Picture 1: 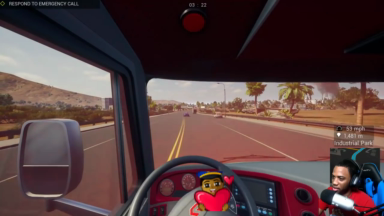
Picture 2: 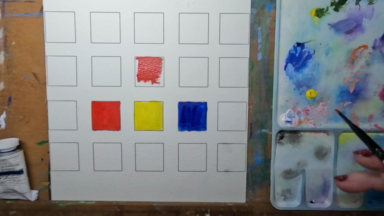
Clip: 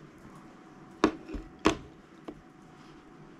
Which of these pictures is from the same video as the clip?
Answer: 2